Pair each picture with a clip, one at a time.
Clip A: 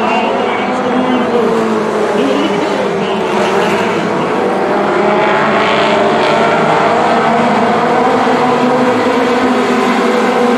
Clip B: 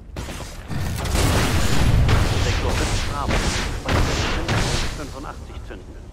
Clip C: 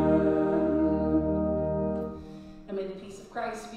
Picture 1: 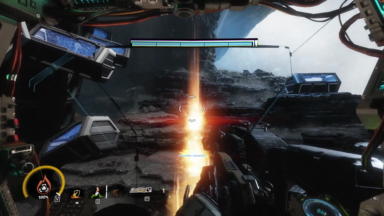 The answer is B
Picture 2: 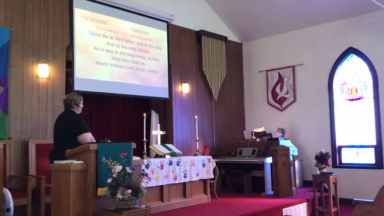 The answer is C